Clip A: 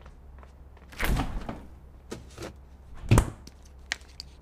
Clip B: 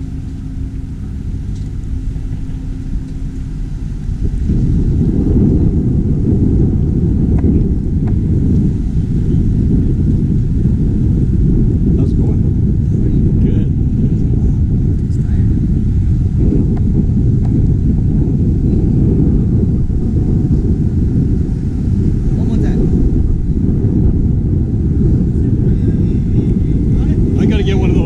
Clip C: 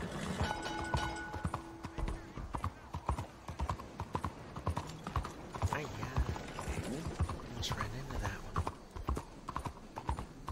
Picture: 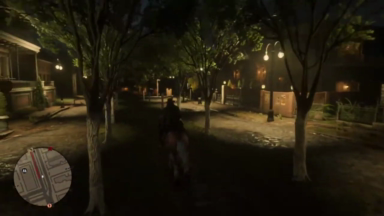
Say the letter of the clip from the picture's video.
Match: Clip C